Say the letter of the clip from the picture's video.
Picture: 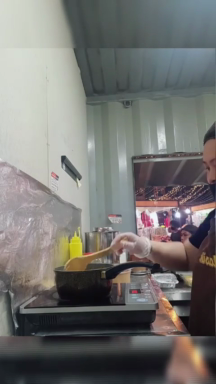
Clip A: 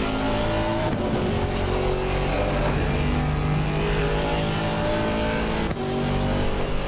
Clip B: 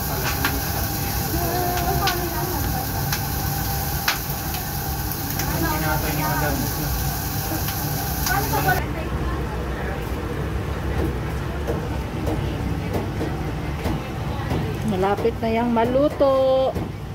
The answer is B